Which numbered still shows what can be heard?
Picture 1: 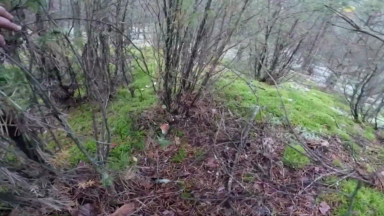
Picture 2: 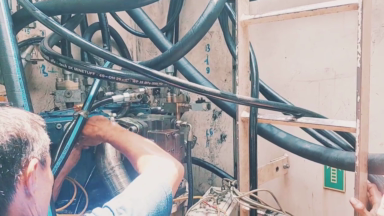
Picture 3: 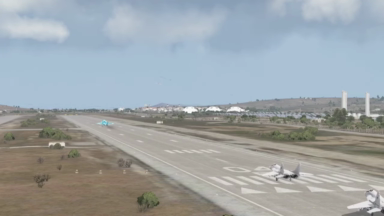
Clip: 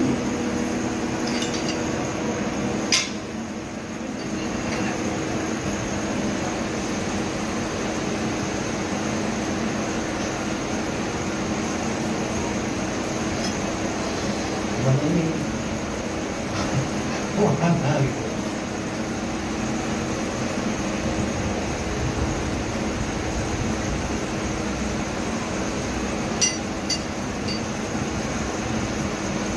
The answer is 2